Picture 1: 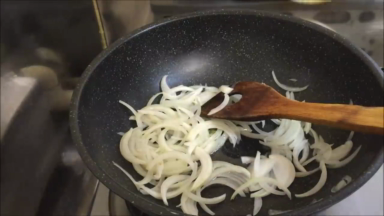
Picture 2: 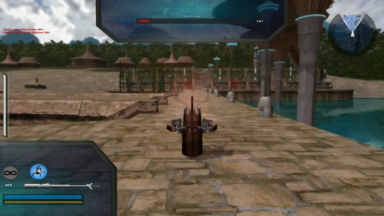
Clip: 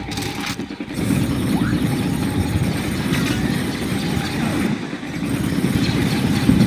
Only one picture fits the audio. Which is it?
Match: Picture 2